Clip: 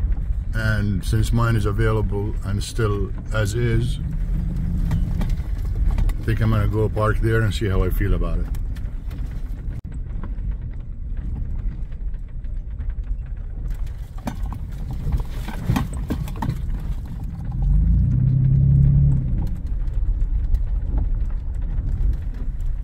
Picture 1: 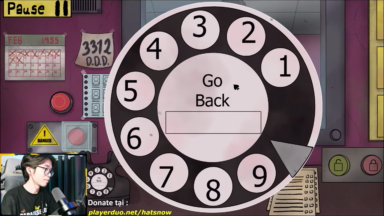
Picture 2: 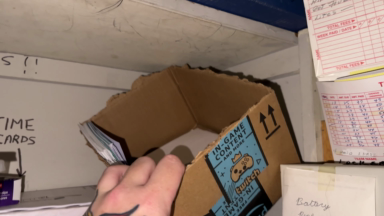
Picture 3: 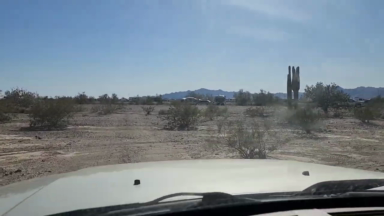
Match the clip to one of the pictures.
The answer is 3